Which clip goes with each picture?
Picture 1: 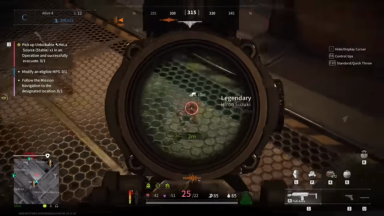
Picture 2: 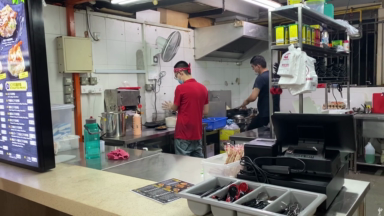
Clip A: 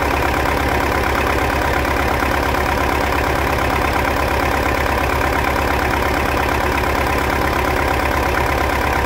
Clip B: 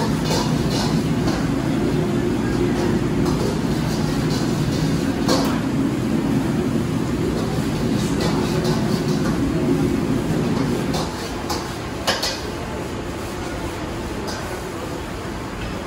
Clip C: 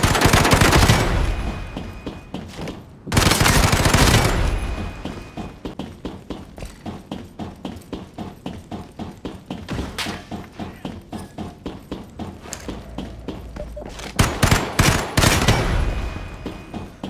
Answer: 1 C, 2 B